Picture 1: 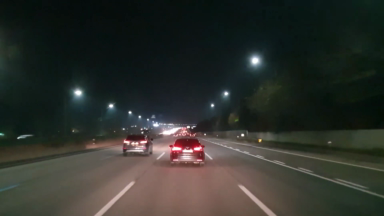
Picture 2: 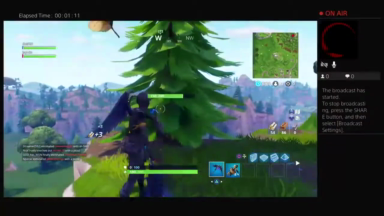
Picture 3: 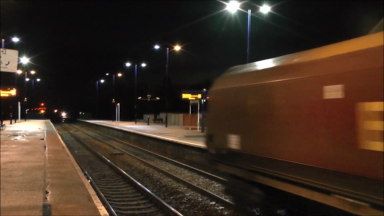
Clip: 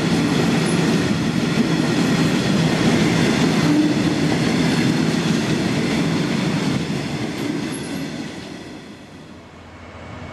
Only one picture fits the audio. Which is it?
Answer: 3